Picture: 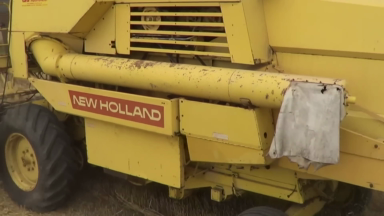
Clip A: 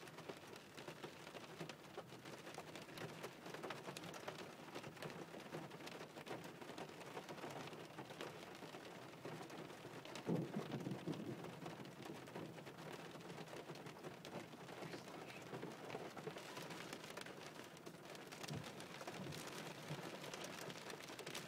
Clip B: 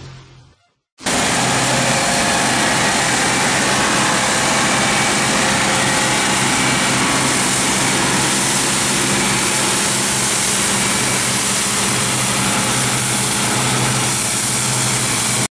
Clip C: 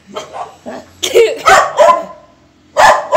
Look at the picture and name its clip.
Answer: B